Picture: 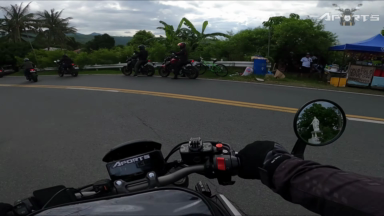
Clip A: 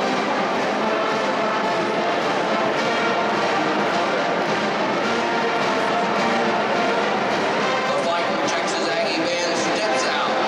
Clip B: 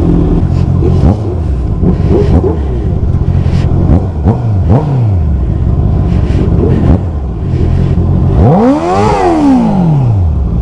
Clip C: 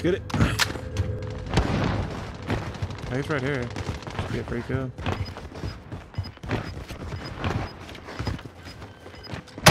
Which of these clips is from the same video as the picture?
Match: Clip B